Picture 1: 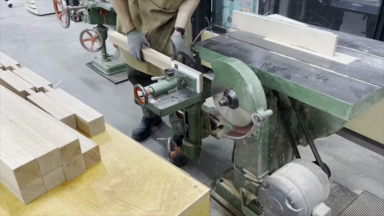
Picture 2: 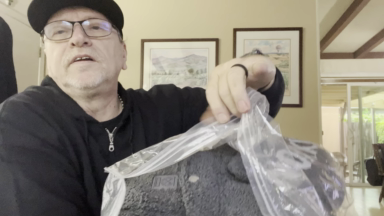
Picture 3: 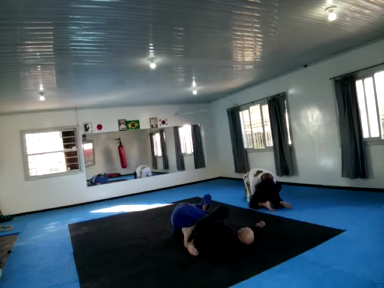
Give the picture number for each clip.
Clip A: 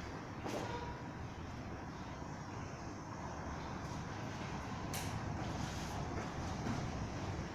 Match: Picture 3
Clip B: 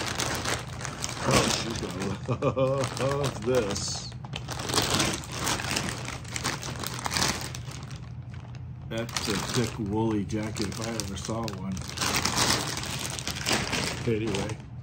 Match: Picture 2